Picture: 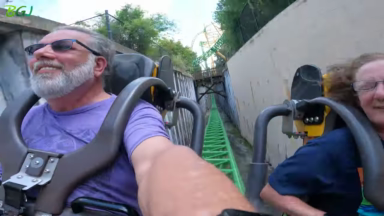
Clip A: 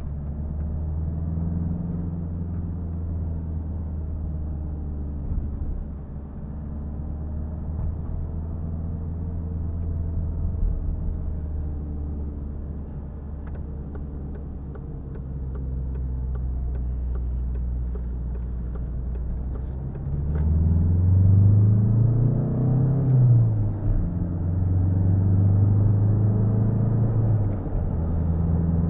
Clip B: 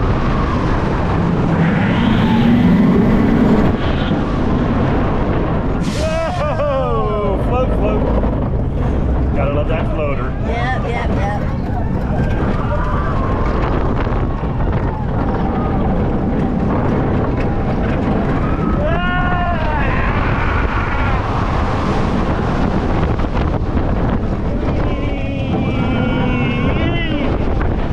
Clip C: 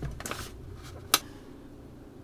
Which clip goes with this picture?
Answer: B